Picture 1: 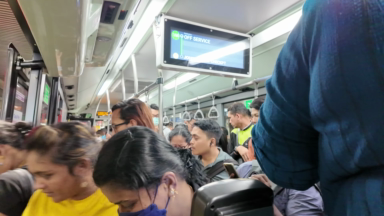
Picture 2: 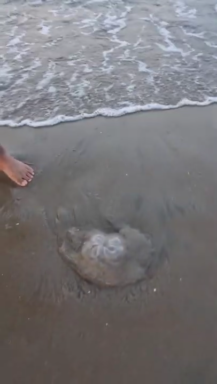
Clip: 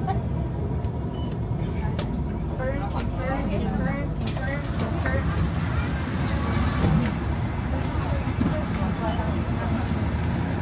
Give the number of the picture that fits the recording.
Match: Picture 1